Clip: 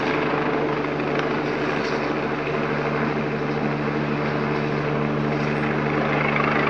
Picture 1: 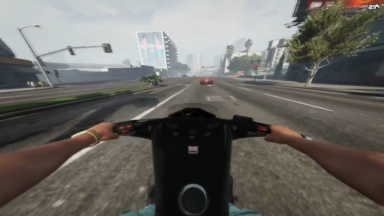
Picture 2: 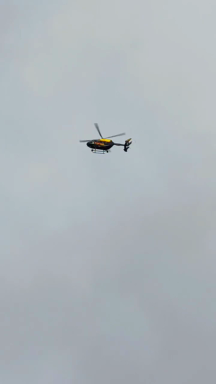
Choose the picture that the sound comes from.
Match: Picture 2